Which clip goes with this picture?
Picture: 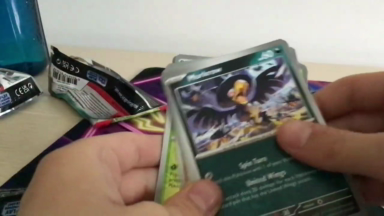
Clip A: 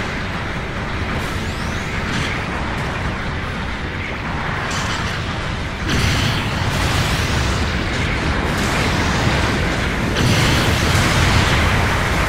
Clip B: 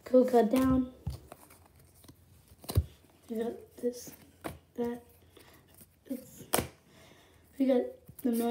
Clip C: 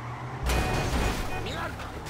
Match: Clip B